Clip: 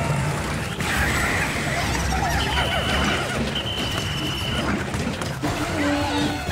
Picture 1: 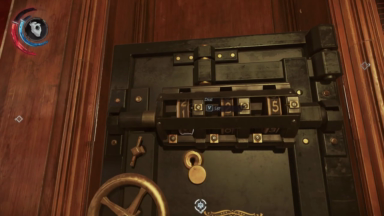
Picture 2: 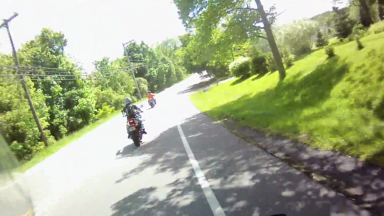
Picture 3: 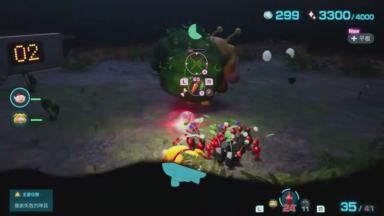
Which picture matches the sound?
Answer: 3